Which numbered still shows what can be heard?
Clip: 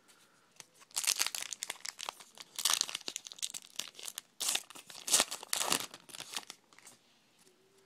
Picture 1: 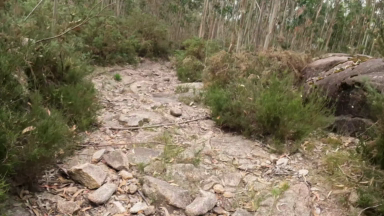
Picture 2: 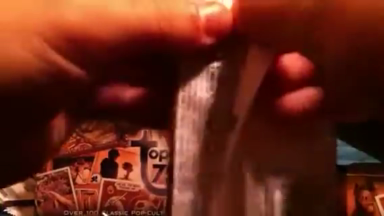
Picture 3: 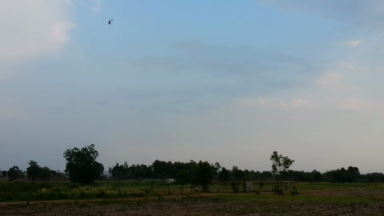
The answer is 2